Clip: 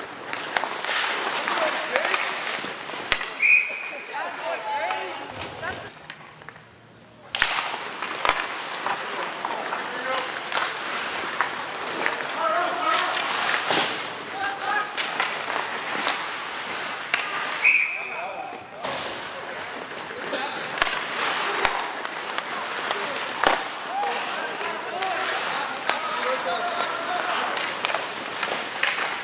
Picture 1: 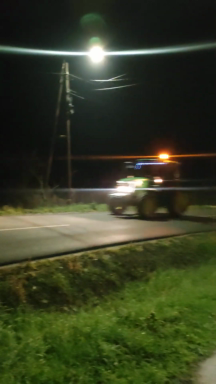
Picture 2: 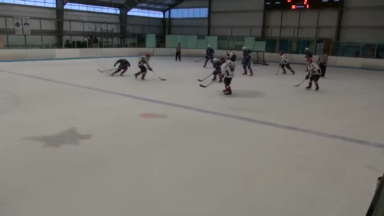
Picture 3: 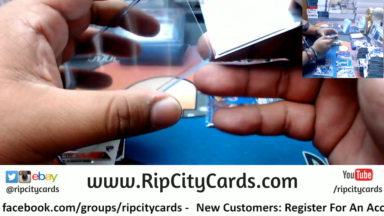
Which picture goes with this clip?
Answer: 2